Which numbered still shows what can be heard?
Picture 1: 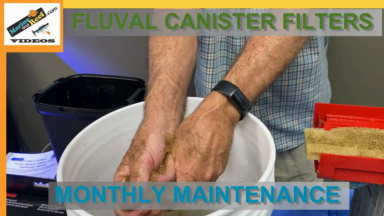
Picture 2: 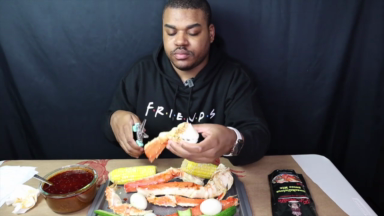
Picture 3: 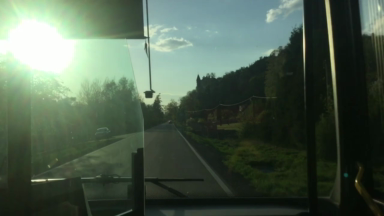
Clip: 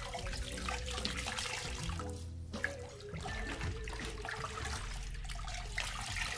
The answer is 1